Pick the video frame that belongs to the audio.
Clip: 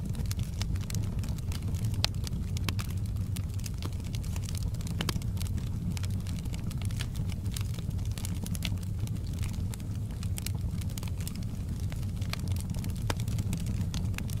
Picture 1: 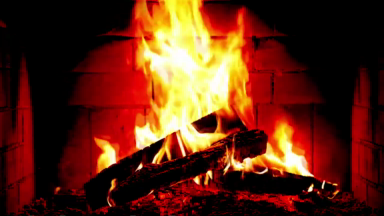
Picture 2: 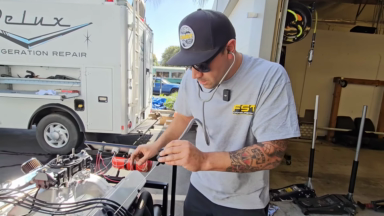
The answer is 1